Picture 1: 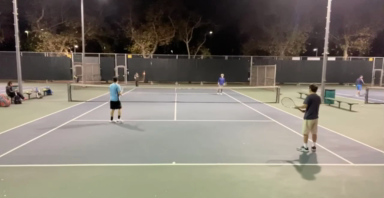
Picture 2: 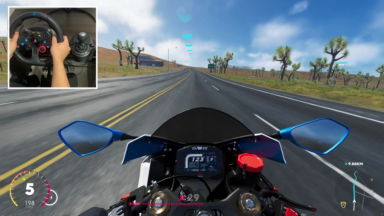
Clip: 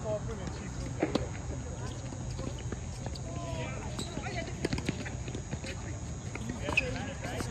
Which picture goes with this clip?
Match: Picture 1